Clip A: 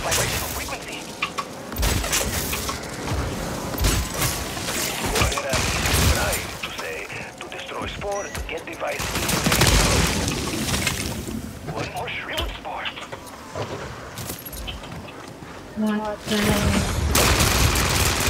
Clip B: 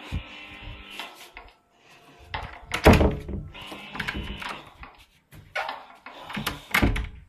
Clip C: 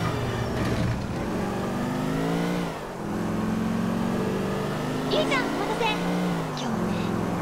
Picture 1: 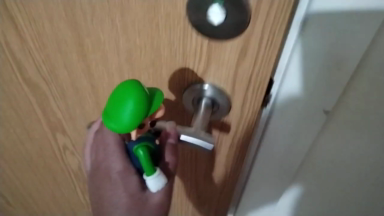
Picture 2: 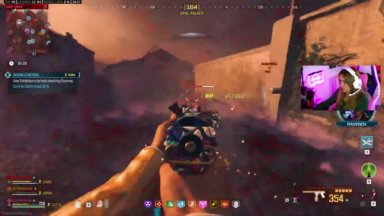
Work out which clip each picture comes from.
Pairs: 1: B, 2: A